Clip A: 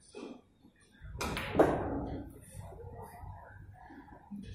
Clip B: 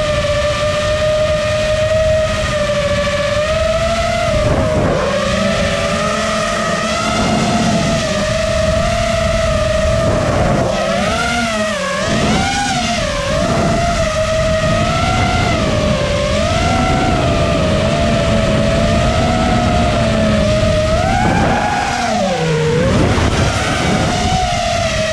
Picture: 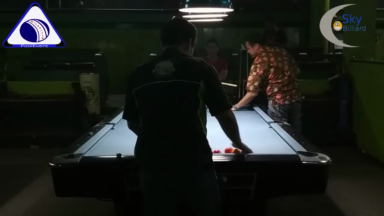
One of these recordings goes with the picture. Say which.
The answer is A